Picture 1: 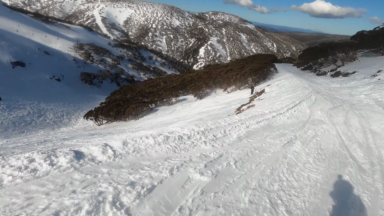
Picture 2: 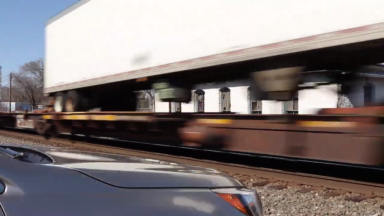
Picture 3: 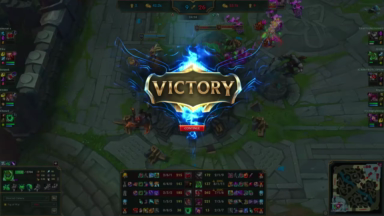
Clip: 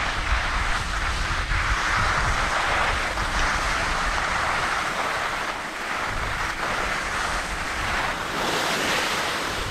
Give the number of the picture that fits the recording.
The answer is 1